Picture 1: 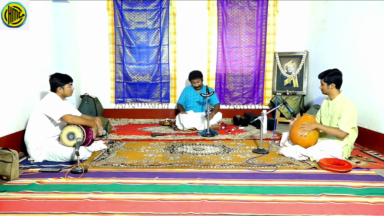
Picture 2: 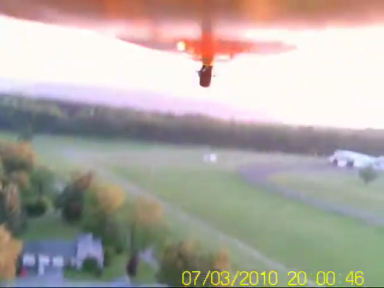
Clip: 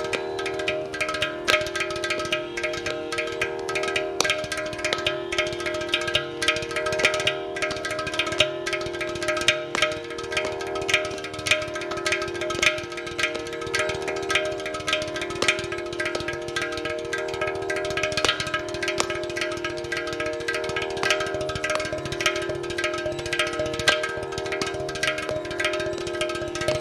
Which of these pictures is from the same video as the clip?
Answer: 1